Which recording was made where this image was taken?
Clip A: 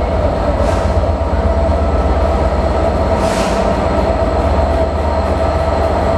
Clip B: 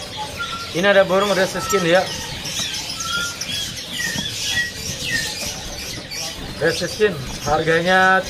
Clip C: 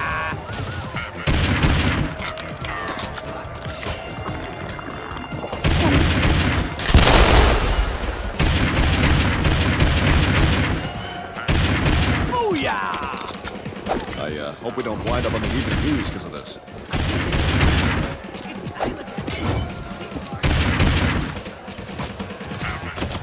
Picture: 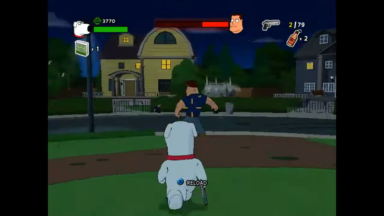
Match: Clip C